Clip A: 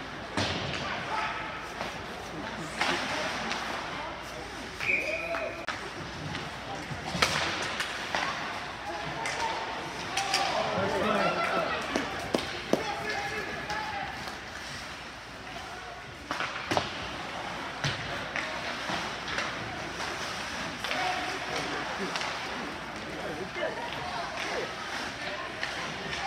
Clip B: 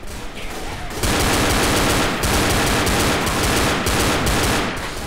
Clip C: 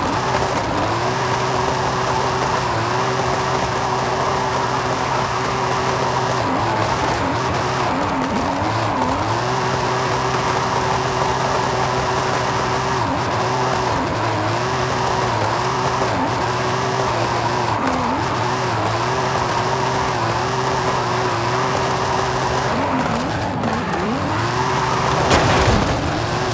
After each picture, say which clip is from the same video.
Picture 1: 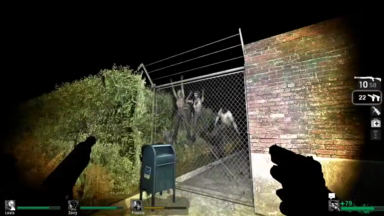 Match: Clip B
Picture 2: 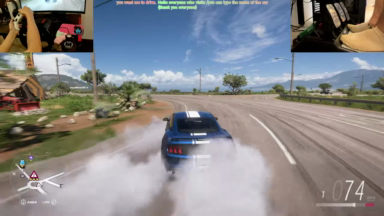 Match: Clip C